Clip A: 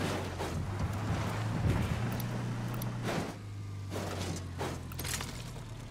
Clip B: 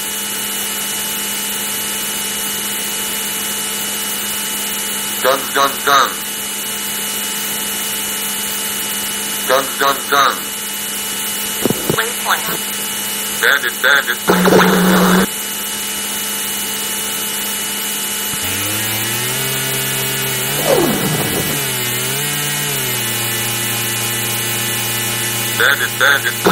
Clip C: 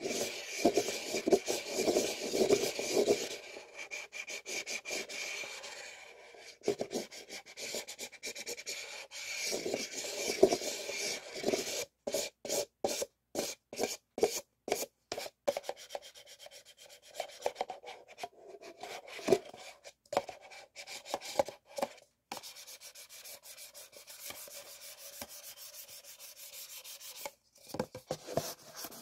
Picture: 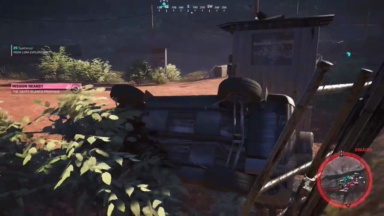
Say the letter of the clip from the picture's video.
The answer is A